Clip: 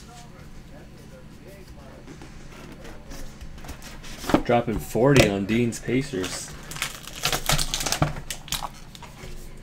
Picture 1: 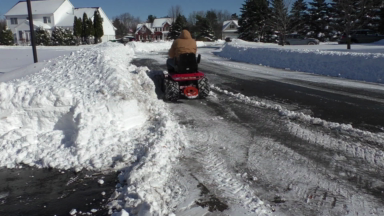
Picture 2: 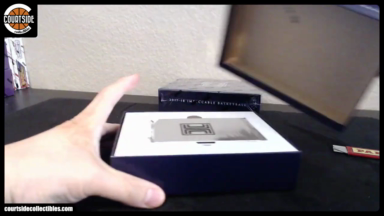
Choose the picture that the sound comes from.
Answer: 2